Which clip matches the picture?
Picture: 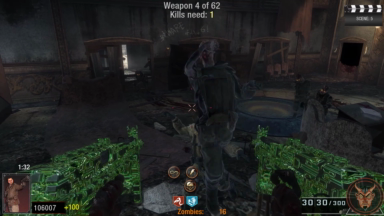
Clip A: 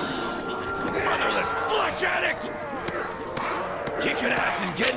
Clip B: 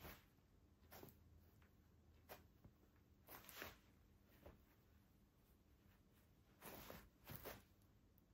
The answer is A